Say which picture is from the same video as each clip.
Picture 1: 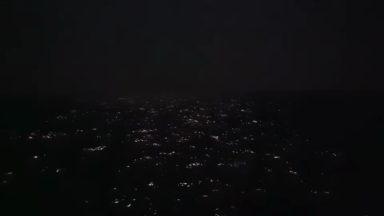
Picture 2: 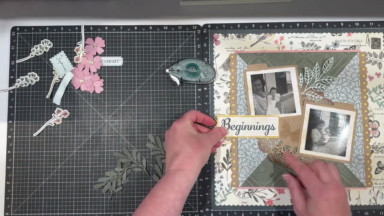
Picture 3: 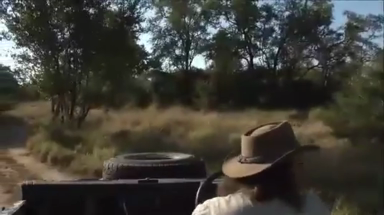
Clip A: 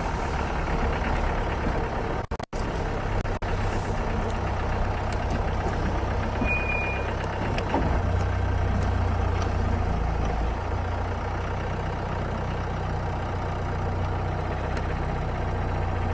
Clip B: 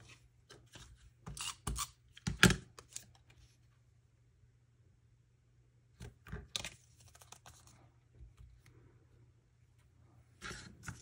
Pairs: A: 3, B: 2